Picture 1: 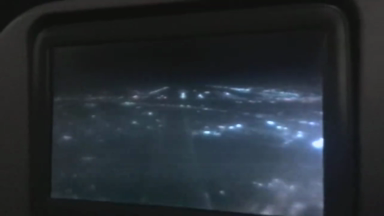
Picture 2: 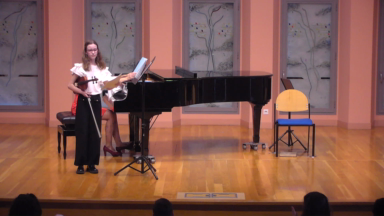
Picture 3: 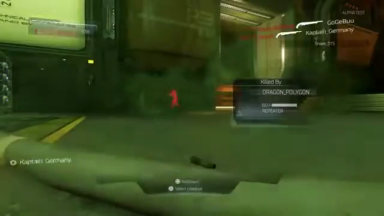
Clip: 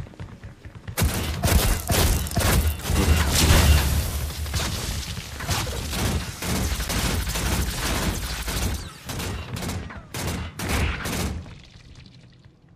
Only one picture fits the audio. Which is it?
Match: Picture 3